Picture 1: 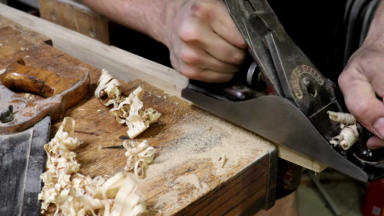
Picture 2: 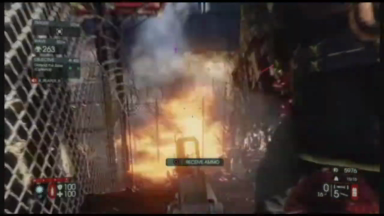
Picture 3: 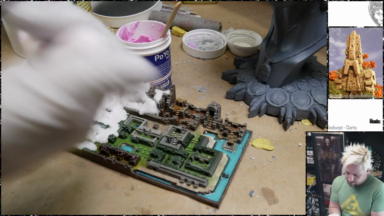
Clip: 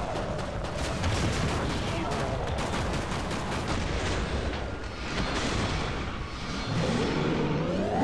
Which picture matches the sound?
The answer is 2